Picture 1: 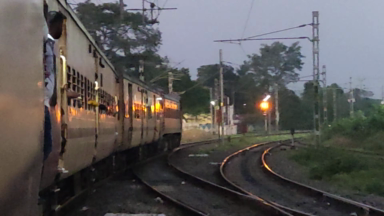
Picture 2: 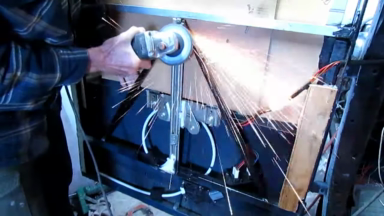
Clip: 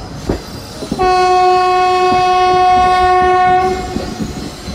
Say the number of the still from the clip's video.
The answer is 1